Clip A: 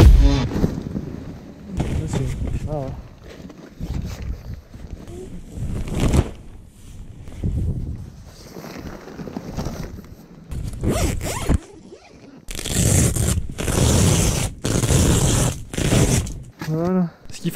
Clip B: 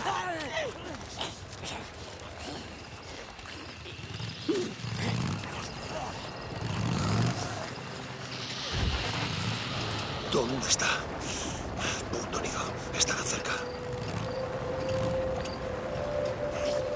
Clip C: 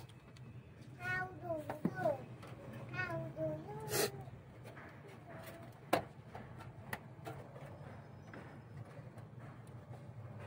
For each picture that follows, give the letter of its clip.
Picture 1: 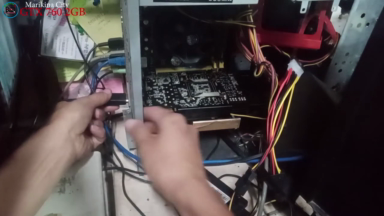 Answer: C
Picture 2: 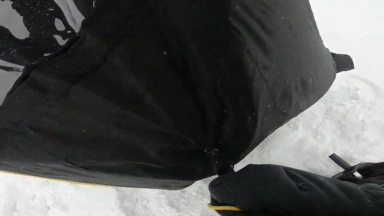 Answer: A